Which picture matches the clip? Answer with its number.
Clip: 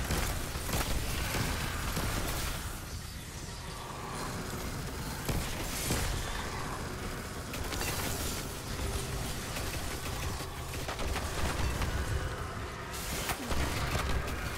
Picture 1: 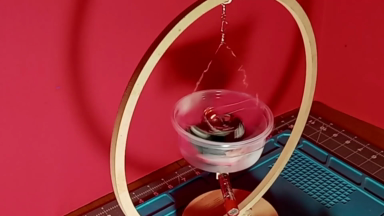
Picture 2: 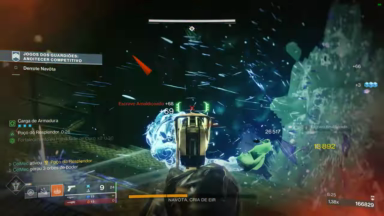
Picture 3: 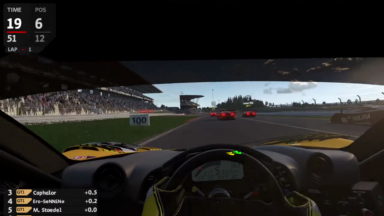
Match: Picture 2